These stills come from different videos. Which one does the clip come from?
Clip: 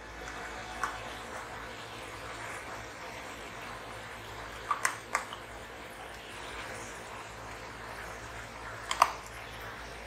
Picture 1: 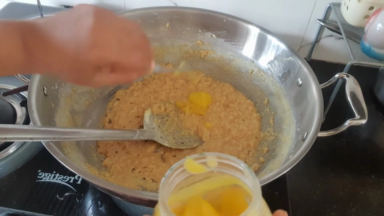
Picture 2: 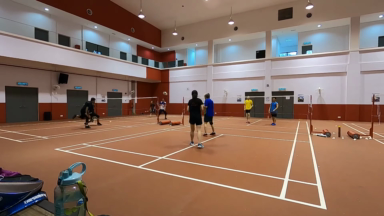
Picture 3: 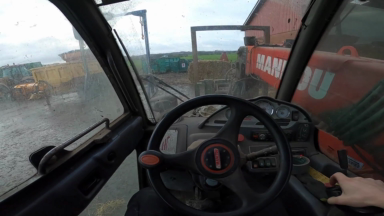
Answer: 1